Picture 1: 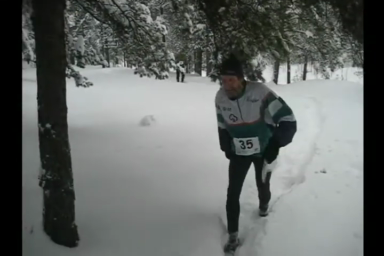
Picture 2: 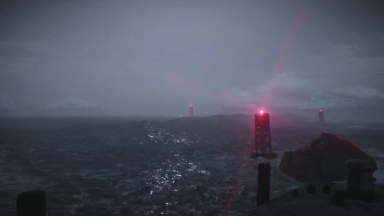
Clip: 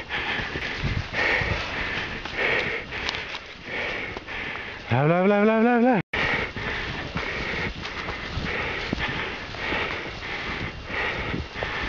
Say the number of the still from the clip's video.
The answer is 1